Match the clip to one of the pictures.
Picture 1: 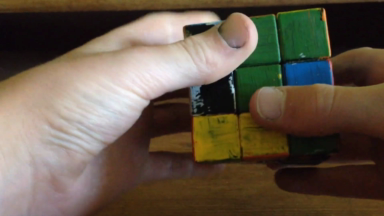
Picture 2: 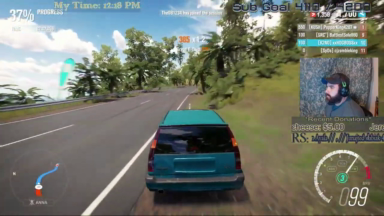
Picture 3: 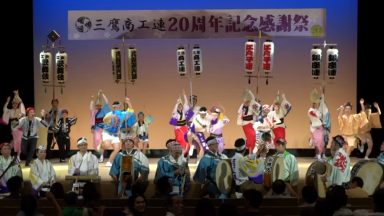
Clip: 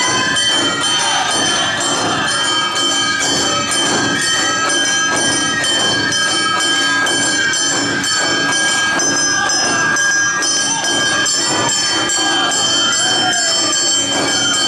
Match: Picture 3